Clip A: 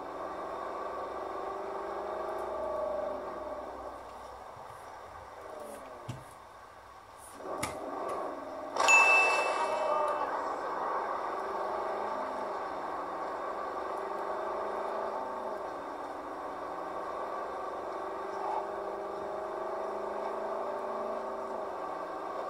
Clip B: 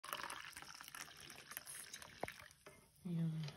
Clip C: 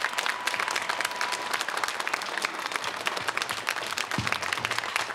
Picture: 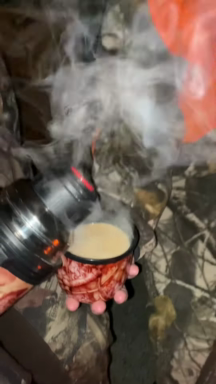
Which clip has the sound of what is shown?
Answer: B